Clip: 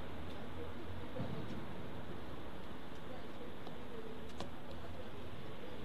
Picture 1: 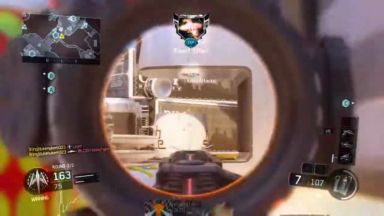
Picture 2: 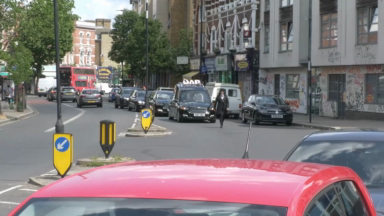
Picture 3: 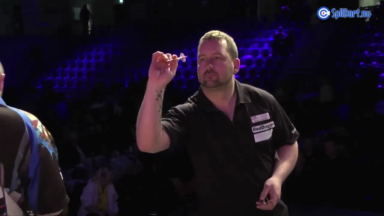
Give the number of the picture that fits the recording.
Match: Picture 2